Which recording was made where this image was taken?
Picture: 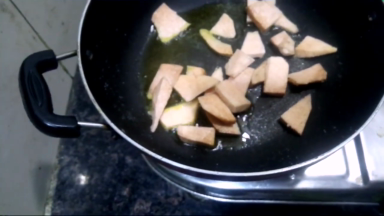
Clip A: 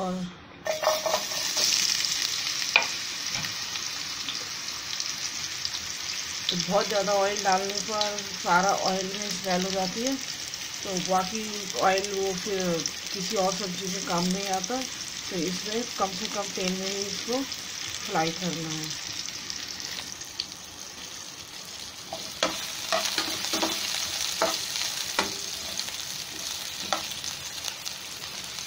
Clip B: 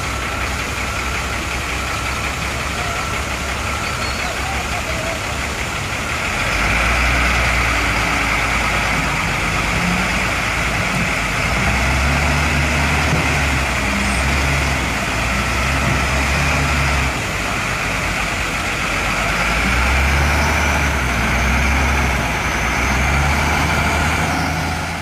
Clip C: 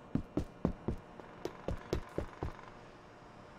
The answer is A